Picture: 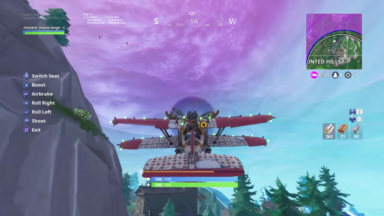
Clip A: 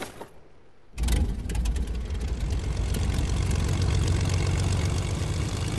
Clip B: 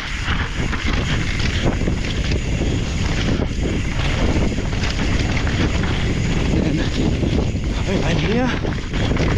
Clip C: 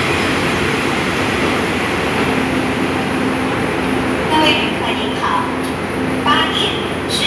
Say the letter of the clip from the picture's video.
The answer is A